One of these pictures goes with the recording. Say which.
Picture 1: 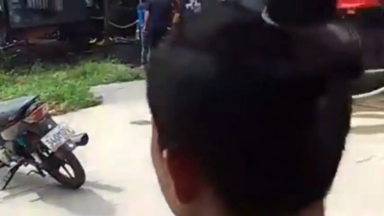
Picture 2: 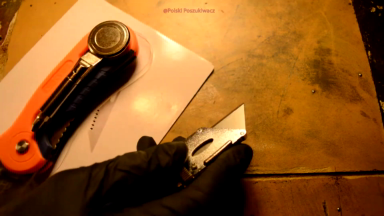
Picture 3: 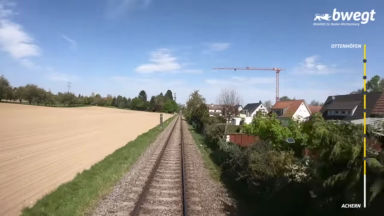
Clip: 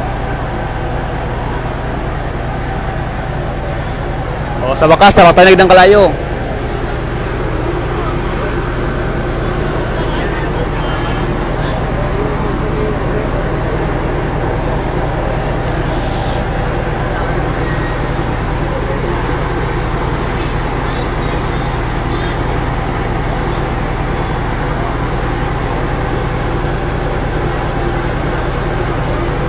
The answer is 1